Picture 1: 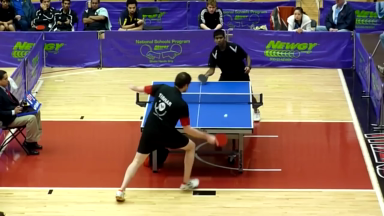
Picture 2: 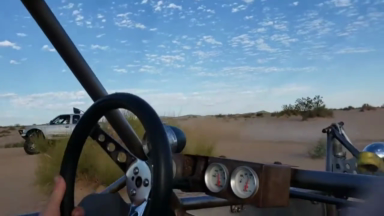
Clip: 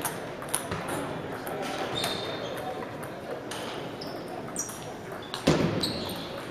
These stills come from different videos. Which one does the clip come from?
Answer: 1